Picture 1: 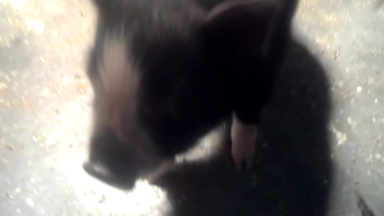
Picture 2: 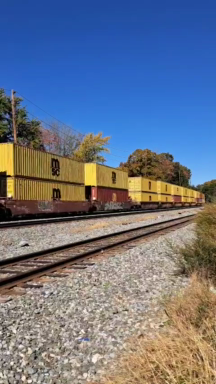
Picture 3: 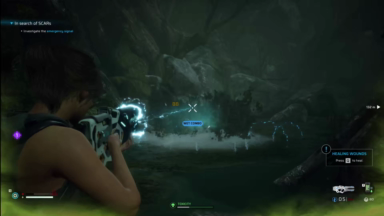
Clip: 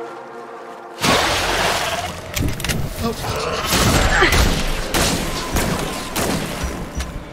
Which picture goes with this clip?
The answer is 3